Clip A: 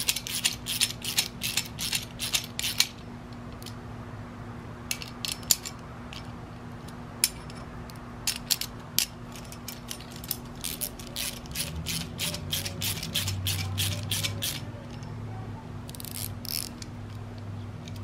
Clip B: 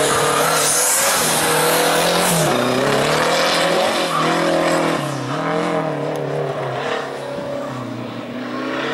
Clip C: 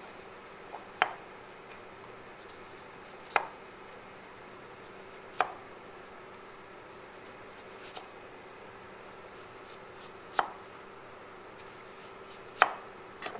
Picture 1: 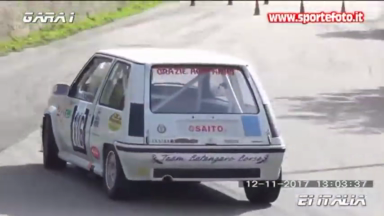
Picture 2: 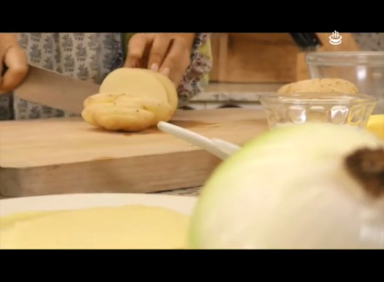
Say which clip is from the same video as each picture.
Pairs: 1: B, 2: C